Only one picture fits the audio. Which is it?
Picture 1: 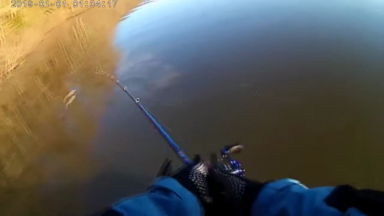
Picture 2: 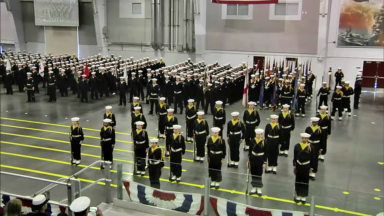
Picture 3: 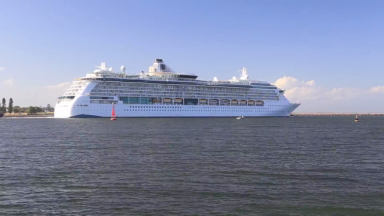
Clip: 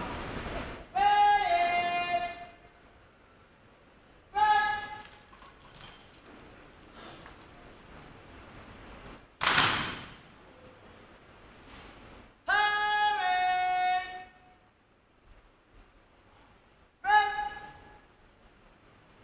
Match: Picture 2